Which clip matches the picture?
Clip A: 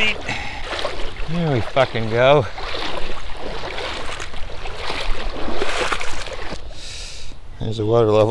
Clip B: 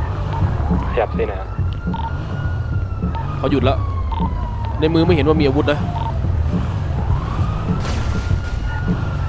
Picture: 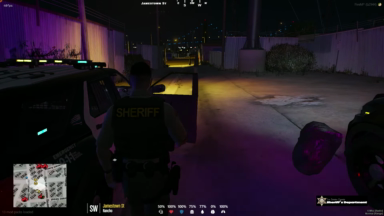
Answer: B